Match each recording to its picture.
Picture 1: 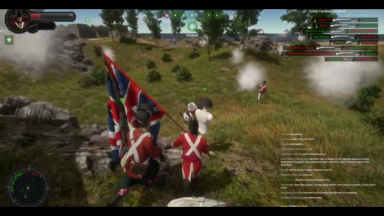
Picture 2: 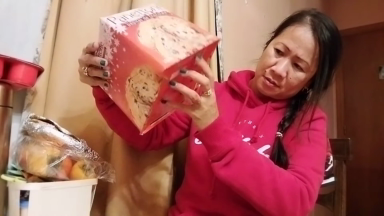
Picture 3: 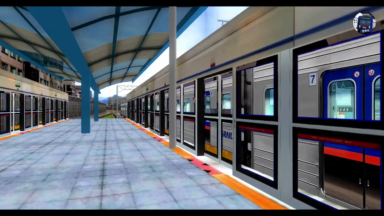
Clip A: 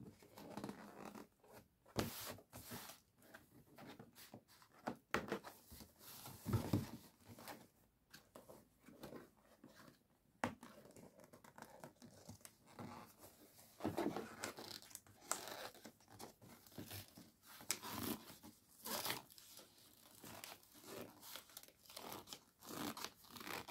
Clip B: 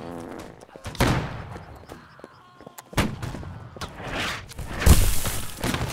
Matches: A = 2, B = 1